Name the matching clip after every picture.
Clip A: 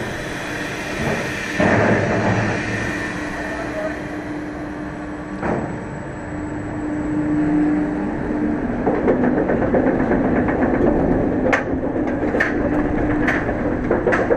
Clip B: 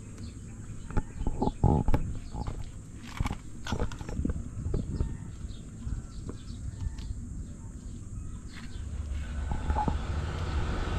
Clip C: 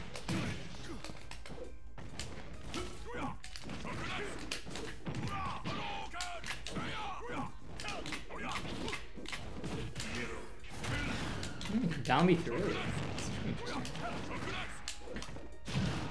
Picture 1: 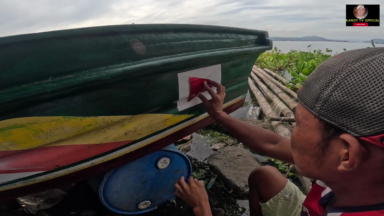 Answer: B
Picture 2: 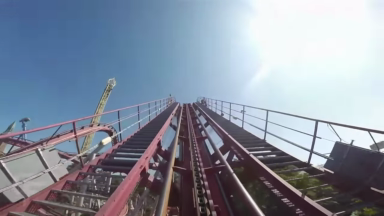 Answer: A